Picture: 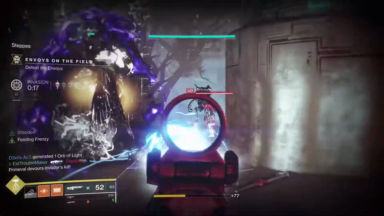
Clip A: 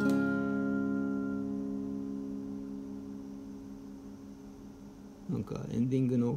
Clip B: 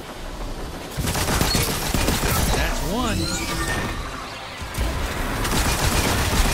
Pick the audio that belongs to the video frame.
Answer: B